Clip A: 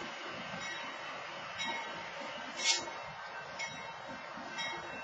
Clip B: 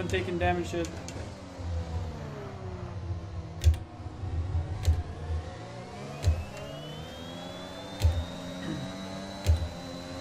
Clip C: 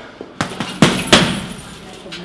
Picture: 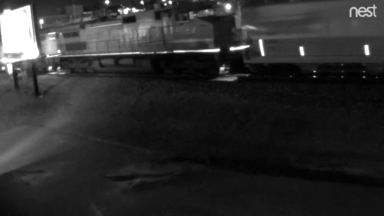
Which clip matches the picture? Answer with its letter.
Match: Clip A